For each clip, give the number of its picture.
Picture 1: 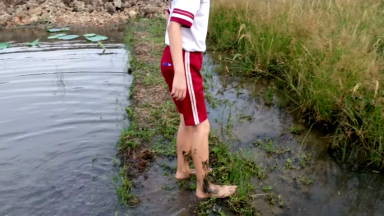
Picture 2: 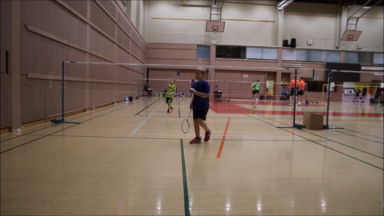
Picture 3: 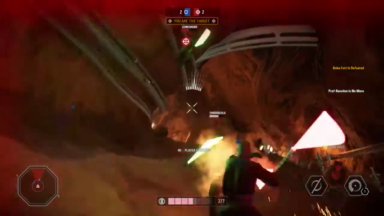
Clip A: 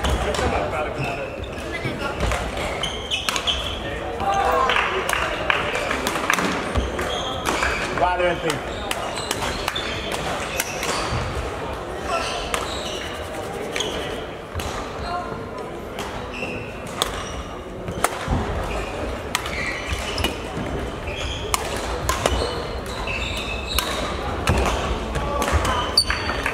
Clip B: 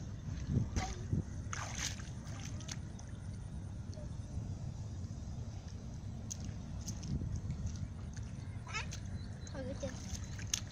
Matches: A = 2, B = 1